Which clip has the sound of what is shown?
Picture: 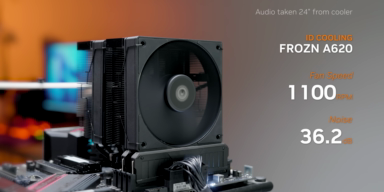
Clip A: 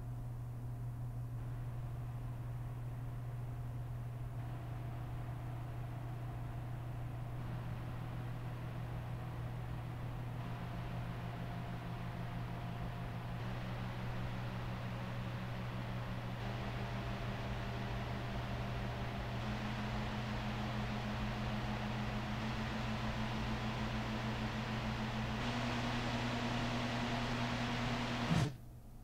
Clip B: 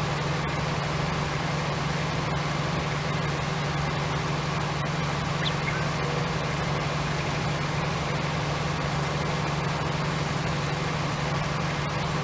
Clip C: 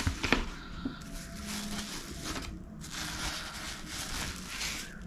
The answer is A